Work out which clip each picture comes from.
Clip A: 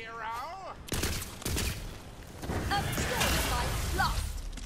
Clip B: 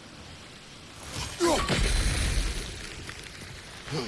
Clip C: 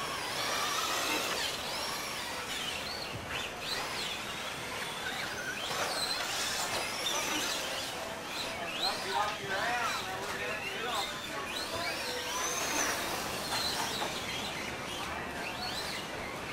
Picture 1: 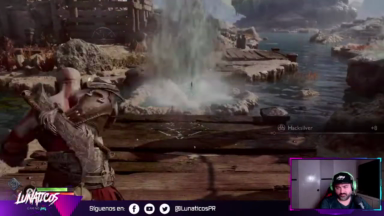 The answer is B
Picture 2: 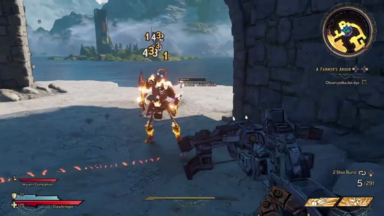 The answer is A